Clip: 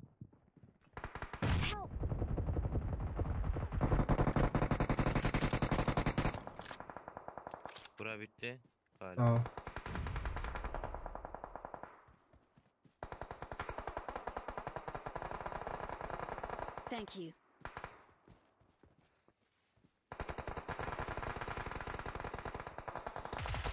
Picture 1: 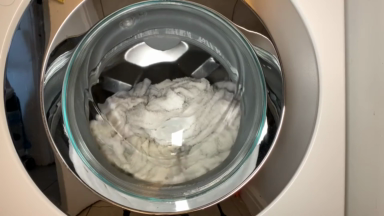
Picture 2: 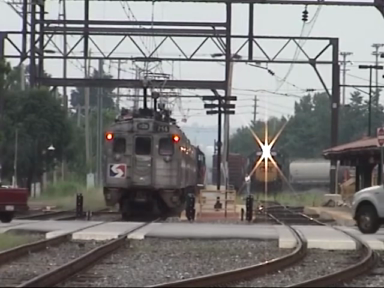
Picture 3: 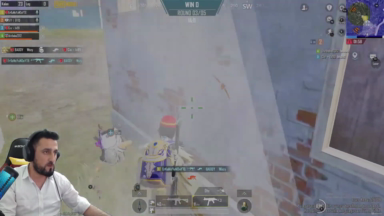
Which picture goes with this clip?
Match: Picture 3